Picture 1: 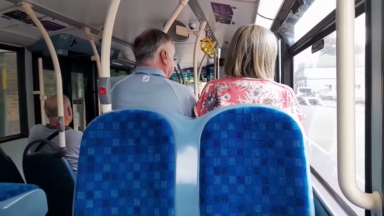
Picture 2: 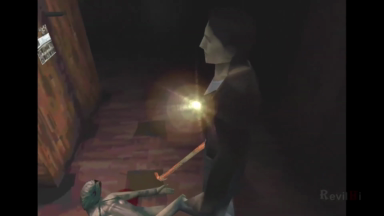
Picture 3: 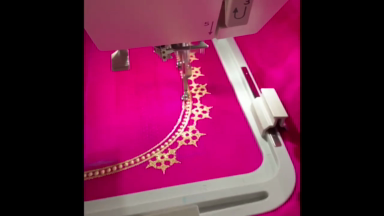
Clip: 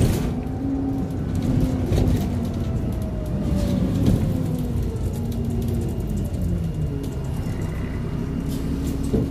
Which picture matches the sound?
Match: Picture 1